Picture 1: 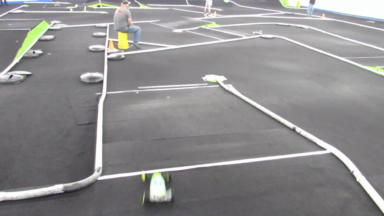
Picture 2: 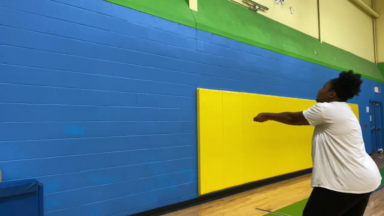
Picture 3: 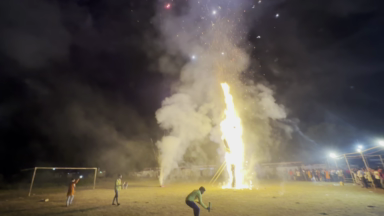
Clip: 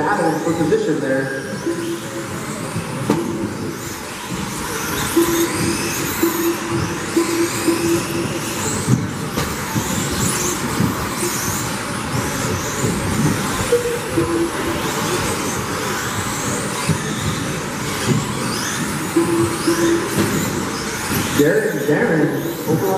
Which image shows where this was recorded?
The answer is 1